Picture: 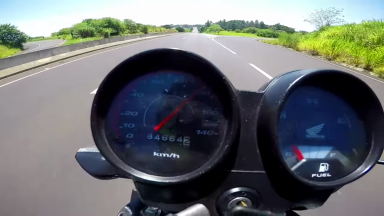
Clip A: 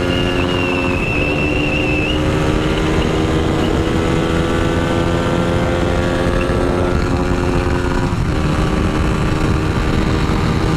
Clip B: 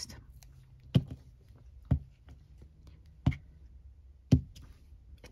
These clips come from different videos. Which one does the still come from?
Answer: A